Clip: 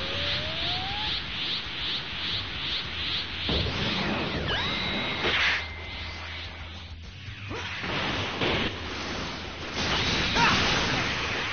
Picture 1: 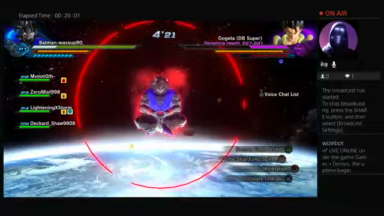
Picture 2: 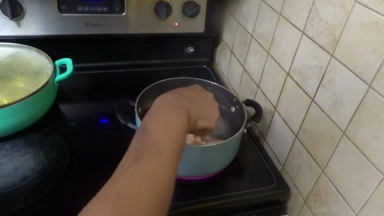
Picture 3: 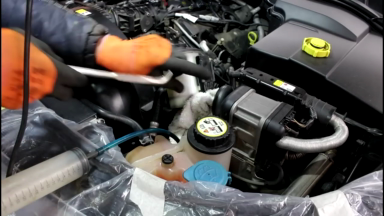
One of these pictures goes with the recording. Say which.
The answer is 1